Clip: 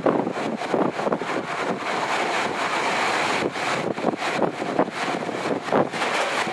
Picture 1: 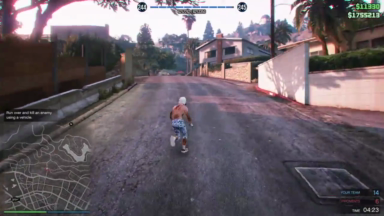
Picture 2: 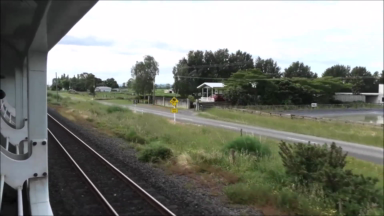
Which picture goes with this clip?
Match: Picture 2